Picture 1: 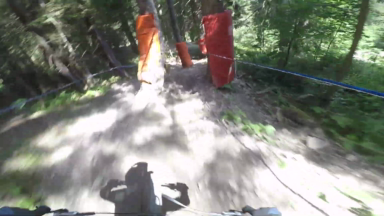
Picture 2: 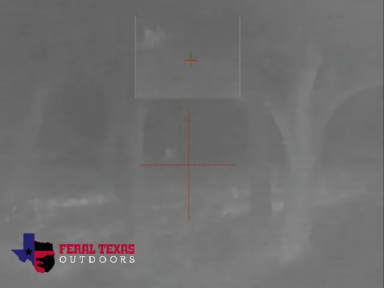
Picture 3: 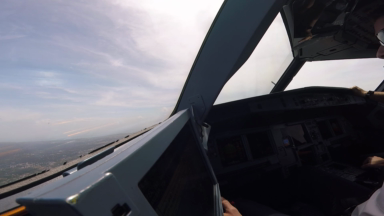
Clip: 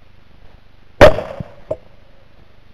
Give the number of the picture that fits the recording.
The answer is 2